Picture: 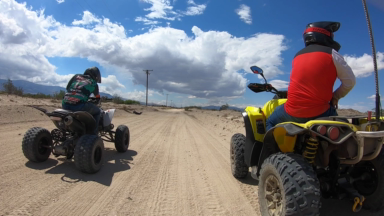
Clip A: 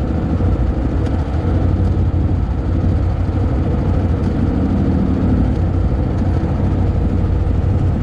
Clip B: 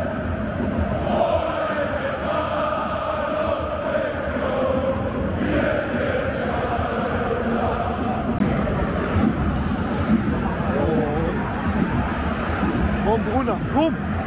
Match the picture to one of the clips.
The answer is A